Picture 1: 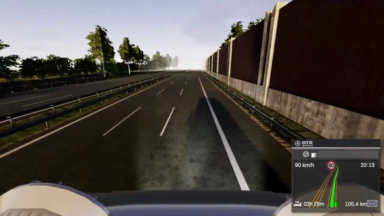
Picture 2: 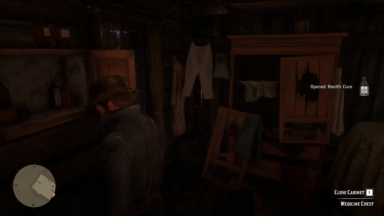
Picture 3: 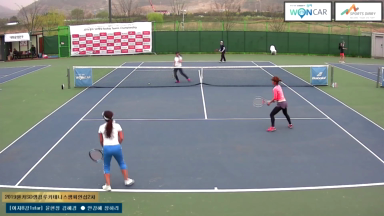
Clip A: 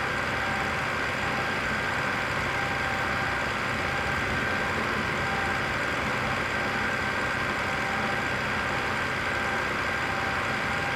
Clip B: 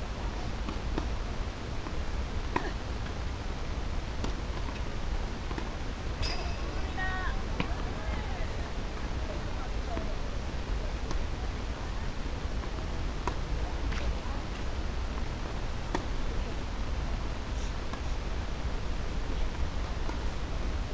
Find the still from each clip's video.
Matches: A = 1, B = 3